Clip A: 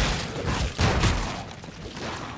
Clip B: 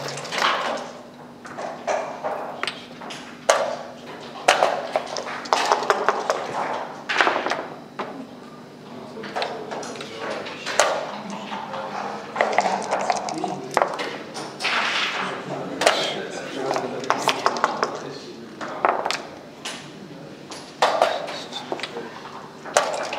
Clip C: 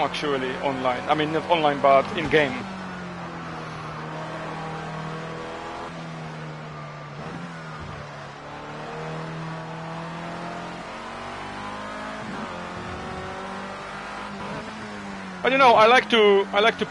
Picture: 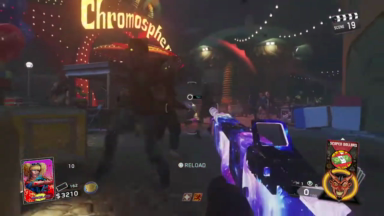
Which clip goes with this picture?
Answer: A